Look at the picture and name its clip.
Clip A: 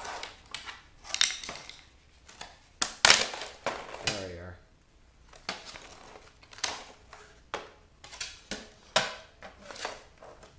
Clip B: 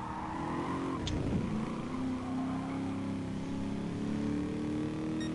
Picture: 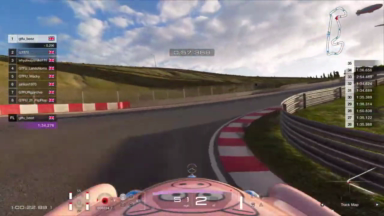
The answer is B